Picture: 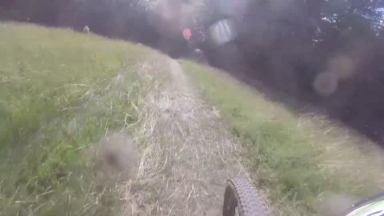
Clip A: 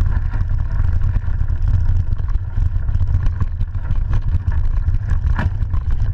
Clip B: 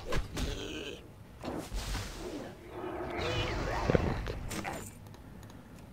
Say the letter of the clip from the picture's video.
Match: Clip A